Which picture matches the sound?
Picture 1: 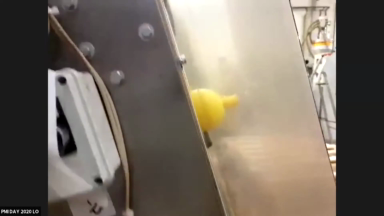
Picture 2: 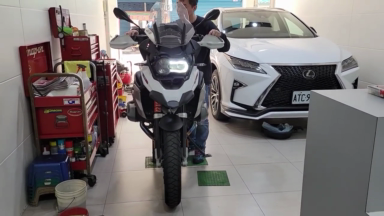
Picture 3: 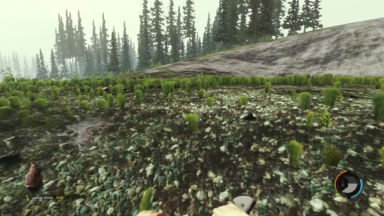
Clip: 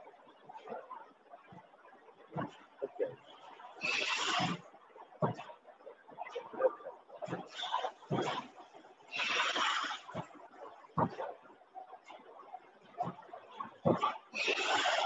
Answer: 1